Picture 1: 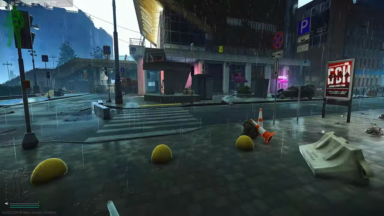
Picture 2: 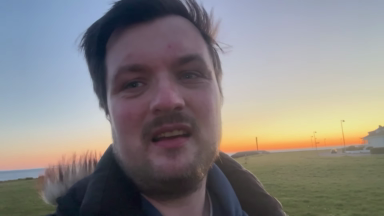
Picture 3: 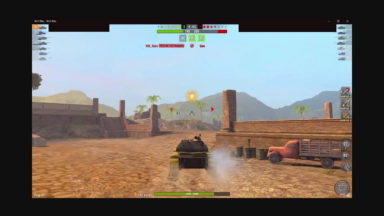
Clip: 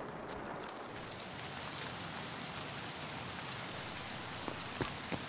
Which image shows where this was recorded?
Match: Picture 1